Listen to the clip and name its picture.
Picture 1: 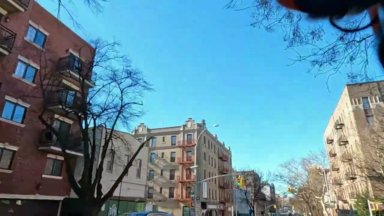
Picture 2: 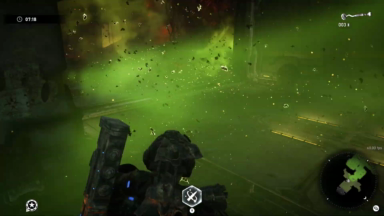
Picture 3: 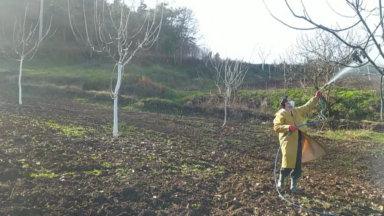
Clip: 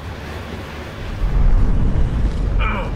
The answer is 2